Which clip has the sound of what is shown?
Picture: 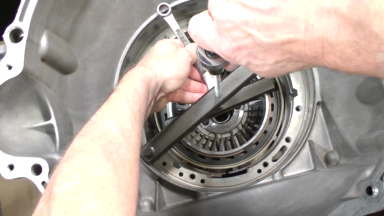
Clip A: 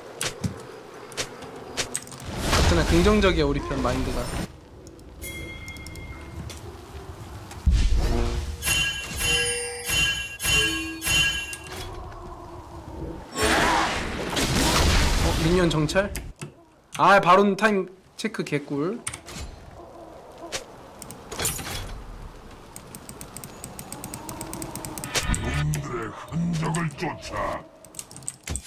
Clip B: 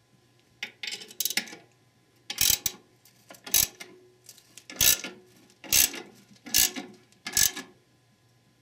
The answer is B